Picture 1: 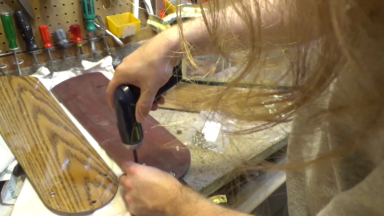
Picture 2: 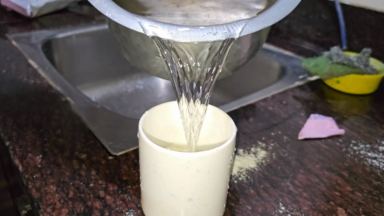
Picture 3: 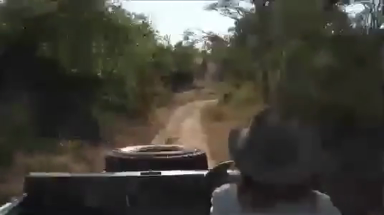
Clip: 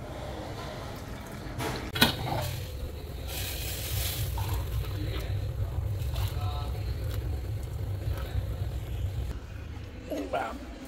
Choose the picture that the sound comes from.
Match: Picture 2